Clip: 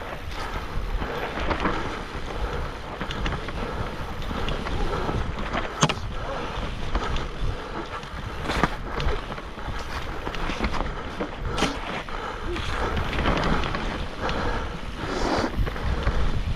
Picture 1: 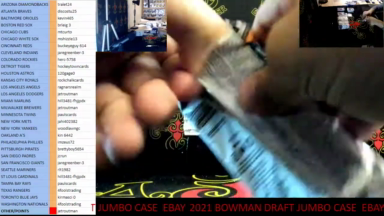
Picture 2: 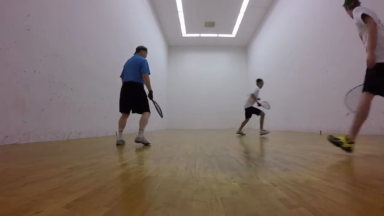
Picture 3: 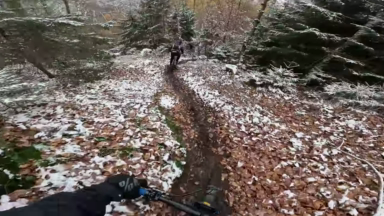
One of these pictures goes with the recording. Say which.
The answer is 3